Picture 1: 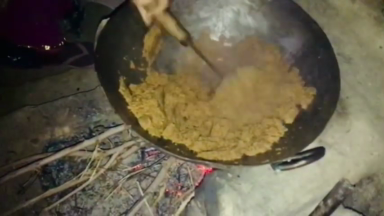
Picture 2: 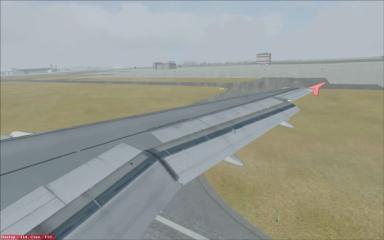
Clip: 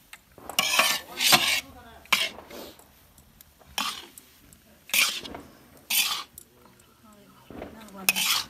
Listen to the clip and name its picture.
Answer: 1